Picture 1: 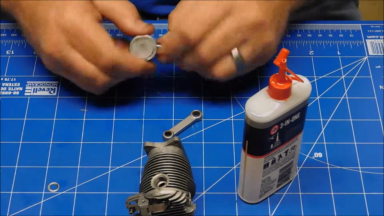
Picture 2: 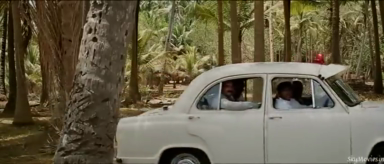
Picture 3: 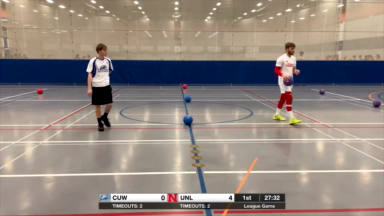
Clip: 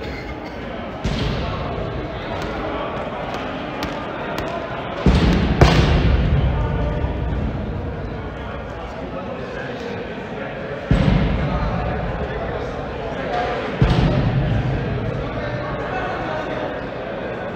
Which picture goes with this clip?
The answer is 3